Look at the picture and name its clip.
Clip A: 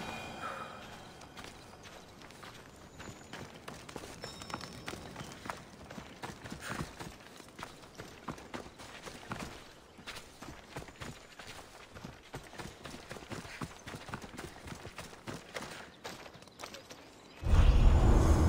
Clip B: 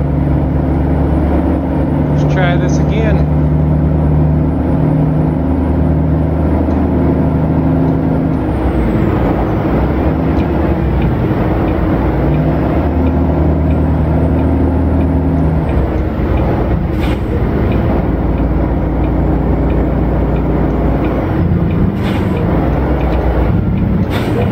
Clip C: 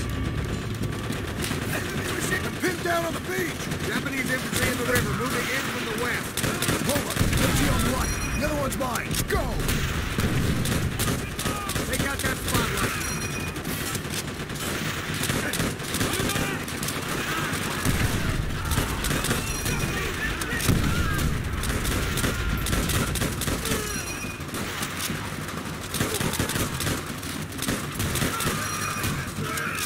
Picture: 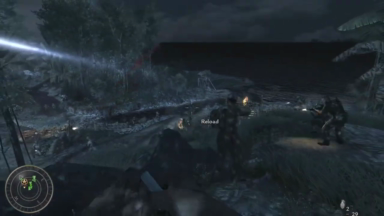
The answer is C